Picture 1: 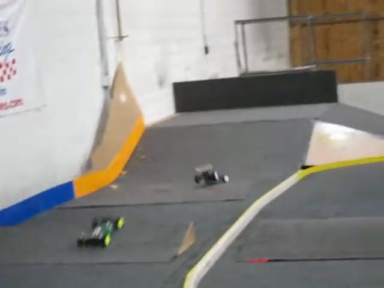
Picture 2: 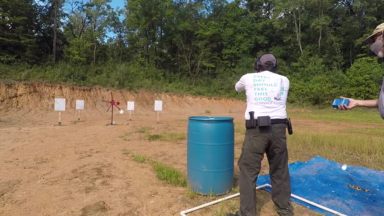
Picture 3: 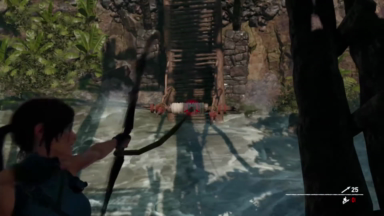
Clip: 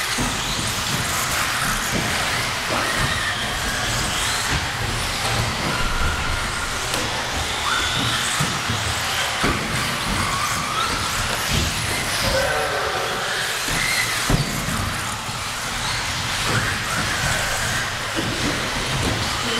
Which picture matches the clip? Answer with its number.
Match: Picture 1